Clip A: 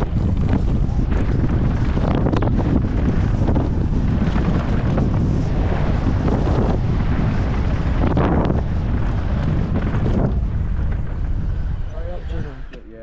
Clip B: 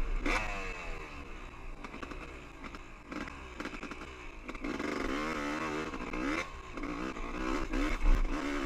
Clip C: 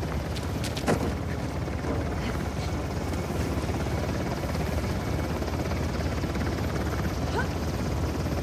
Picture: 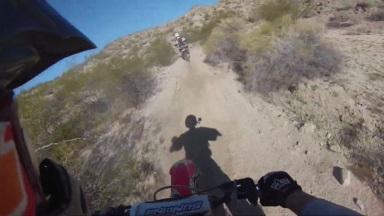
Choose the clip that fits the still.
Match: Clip B